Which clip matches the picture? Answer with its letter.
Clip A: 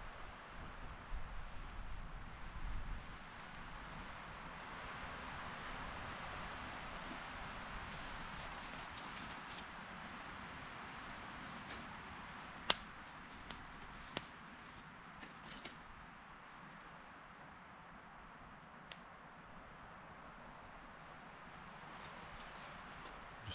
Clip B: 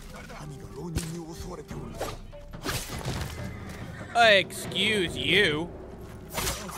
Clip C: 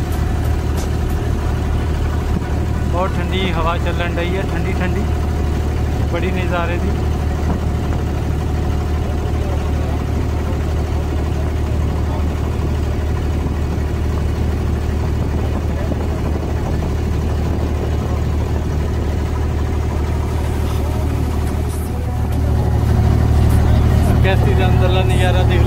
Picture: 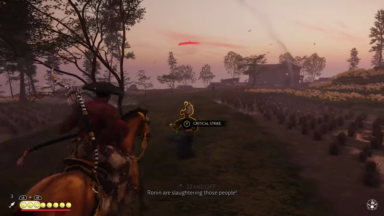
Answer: B